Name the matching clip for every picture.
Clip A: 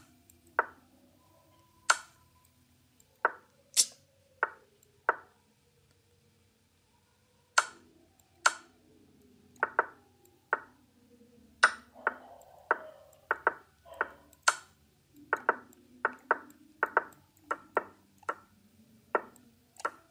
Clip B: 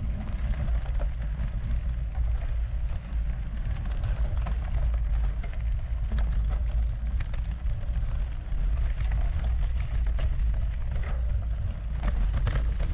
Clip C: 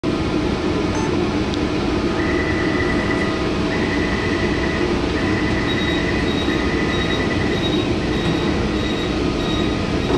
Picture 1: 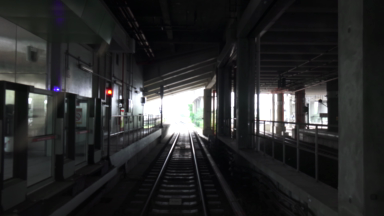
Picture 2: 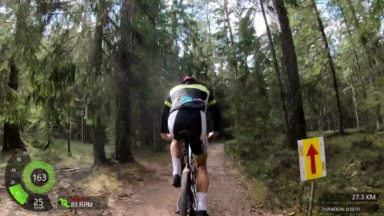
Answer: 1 C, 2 B